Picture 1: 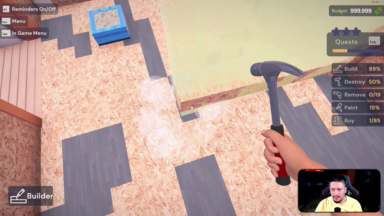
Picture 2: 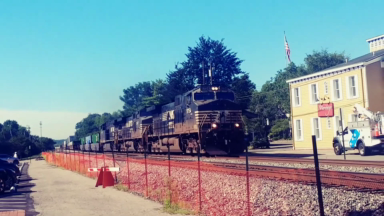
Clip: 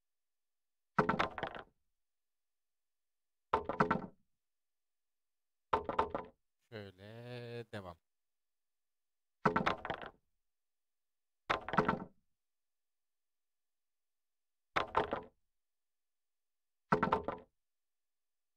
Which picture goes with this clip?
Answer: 1